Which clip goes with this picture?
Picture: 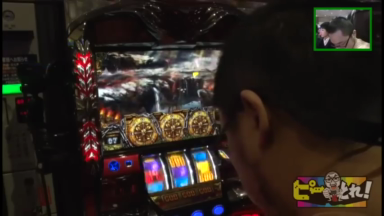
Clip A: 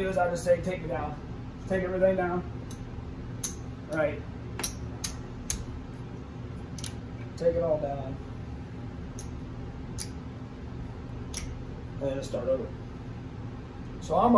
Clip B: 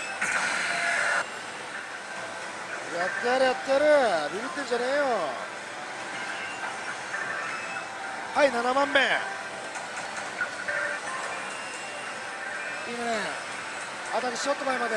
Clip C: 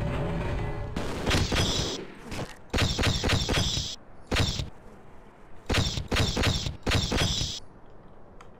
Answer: B